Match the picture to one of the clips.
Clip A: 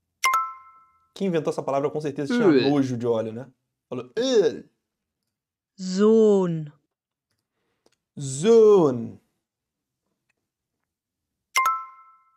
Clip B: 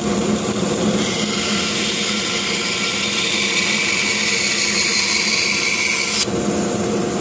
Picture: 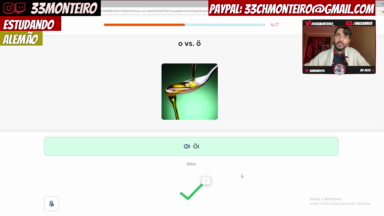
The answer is A